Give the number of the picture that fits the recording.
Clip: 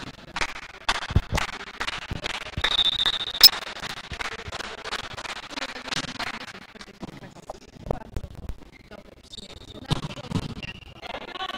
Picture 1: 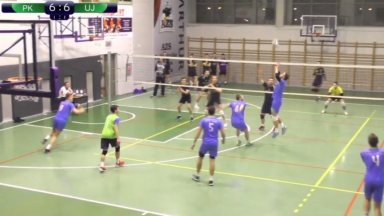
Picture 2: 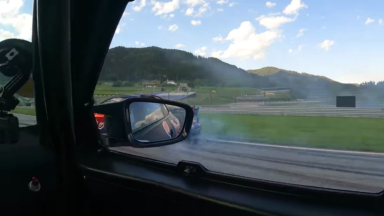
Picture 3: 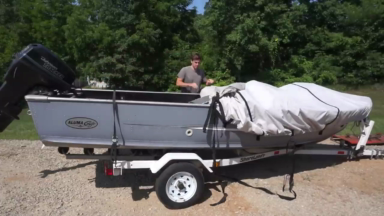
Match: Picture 1